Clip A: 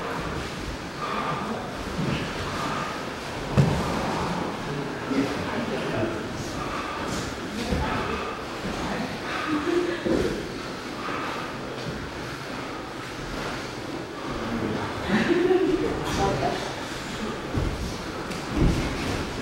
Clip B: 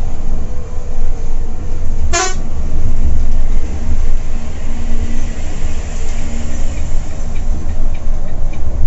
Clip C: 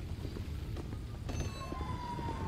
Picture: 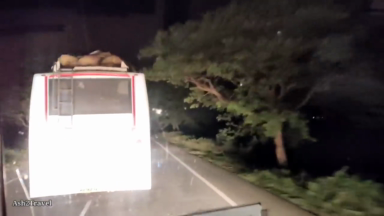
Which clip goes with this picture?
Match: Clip B